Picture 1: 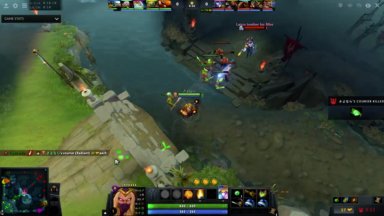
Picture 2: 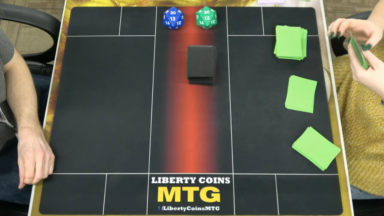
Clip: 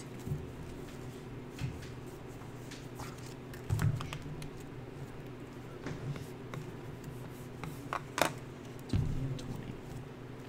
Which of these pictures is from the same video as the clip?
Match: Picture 2